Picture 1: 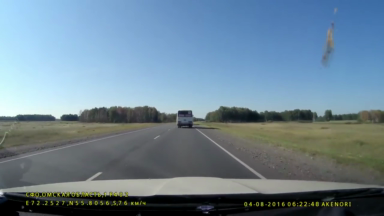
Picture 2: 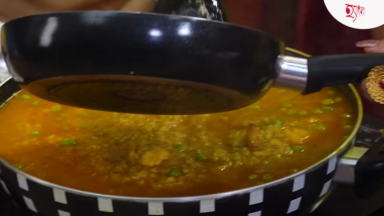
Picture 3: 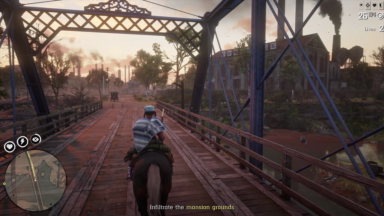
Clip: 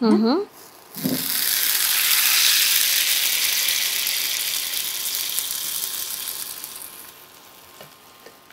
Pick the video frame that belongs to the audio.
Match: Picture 2